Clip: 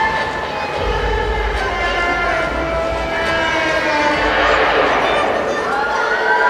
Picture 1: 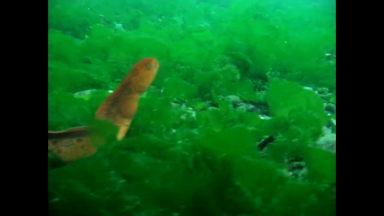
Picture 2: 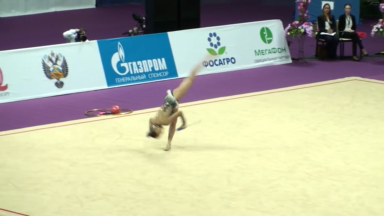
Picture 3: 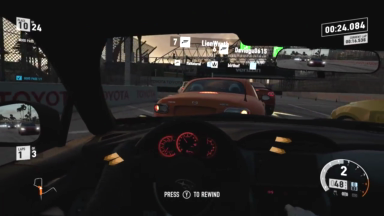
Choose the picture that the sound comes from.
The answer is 2